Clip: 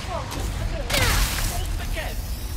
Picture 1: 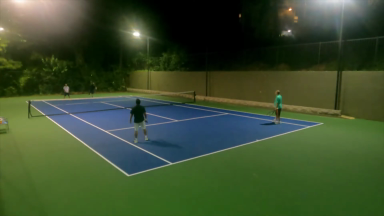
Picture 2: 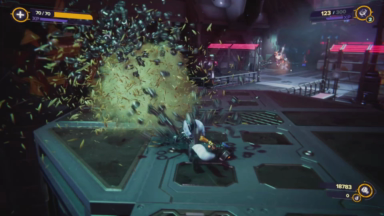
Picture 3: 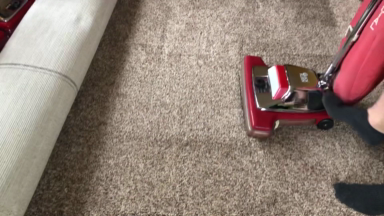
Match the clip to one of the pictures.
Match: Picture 2